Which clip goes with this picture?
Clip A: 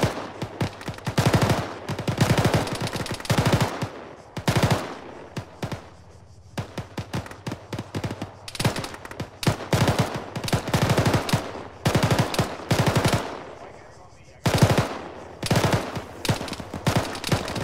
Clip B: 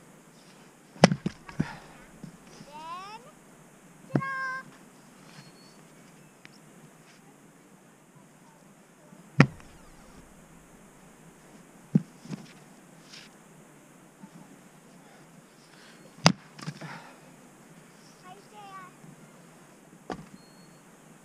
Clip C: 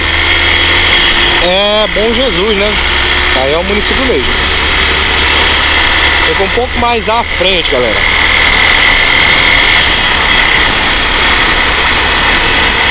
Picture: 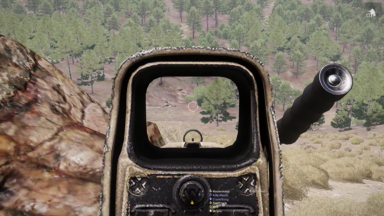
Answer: A